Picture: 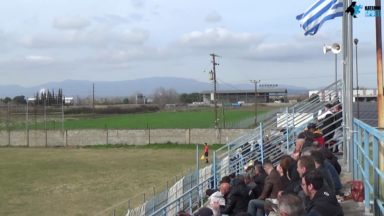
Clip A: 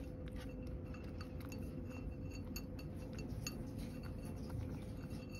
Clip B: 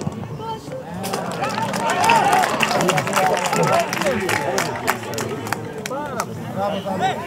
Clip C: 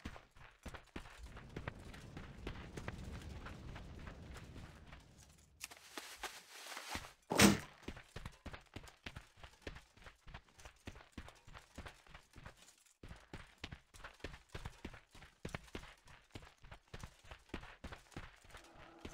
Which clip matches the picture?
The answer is B